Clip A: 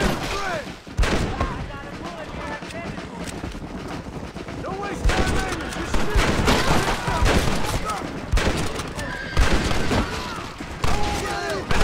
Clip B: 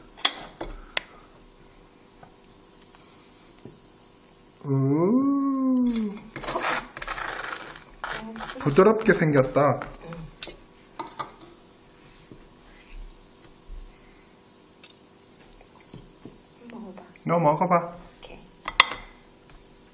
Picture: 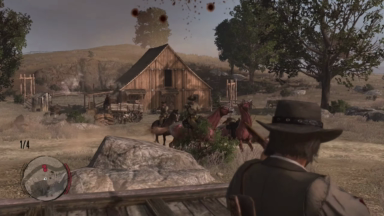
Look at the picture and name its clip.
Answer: A